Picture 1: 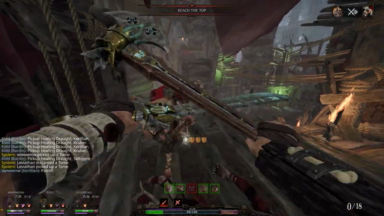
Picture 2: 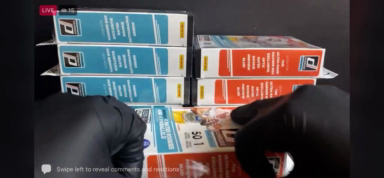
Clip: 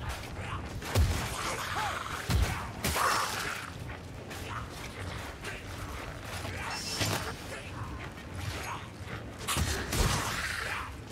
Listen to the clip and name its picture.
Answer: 1